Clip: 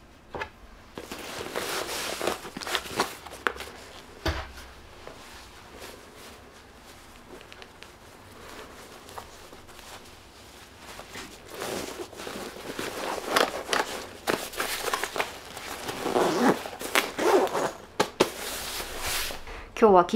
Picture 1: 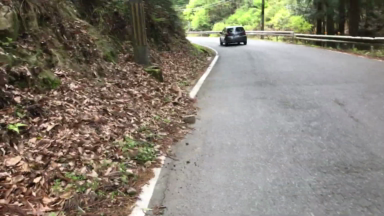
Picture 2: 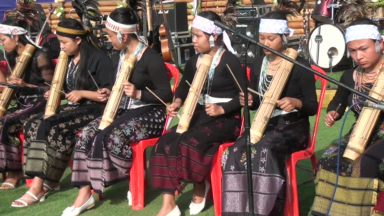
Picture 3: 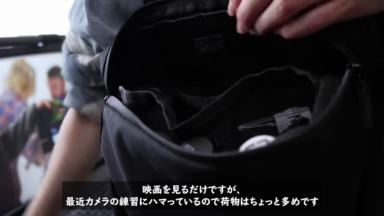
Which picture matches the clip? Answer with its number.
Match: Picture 3